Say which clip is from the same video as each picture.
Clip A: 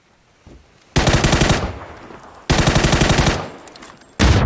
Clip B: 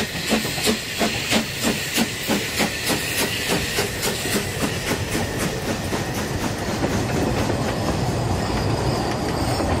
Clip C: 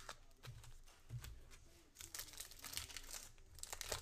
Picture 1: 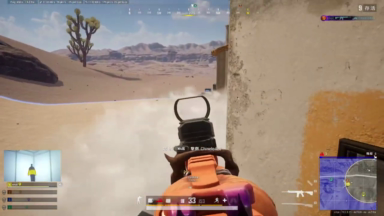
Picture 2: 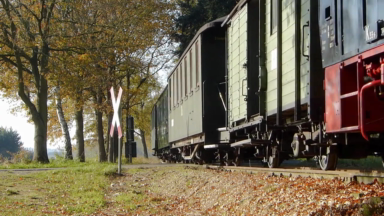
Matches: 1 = A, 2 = B